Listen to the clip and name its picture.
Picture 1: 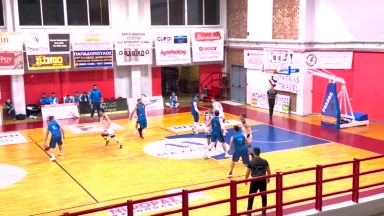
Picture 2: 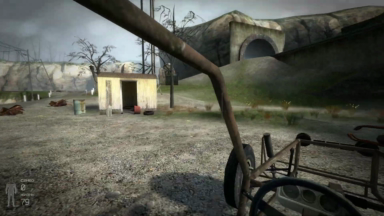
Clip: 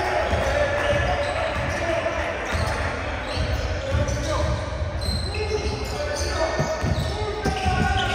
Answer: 1